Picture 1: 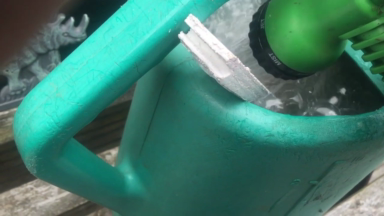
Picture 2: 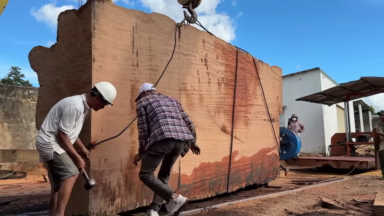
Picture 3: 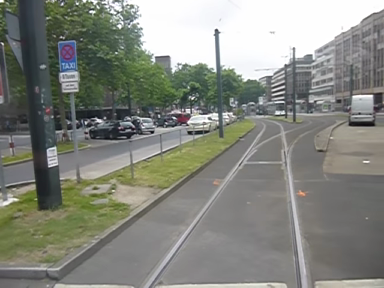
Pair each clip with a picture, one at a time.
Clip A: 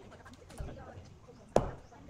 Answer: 2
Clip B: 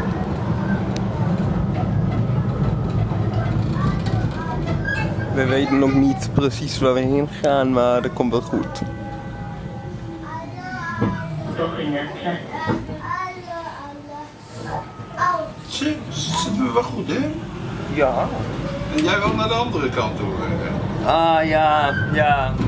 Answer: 3